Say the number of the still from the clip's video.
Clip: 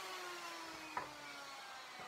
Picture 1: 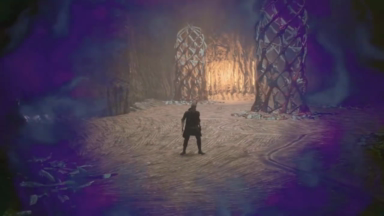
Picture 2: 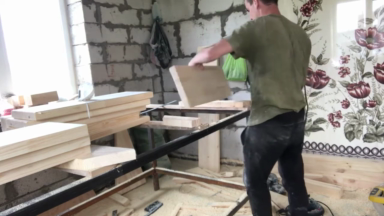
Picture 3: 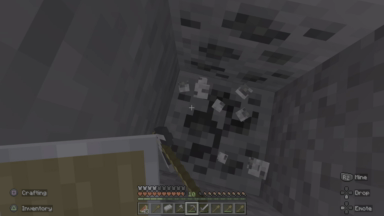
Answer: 2